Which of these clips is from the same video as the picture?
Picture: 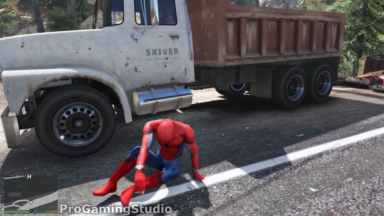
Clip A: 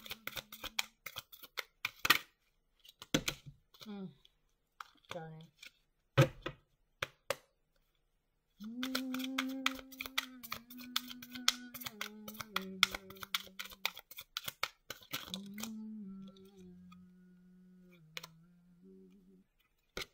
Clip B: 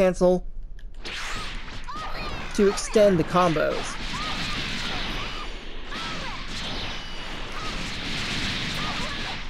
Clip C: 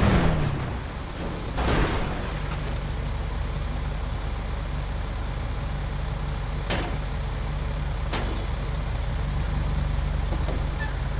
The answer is C